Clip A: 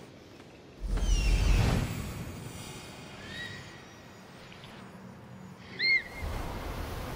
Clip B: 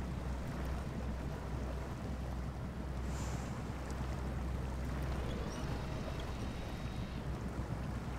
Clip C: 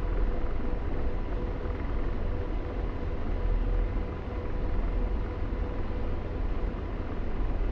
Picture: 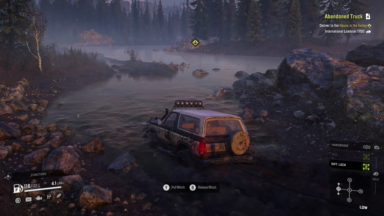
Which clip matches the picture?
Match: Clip B